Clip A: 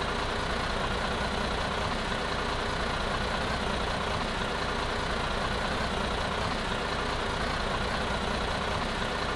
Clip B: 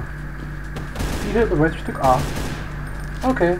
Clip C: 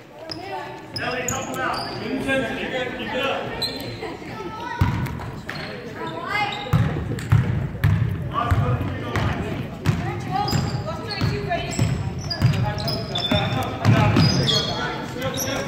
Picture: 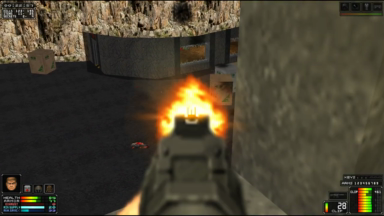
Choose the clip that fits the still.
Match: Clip B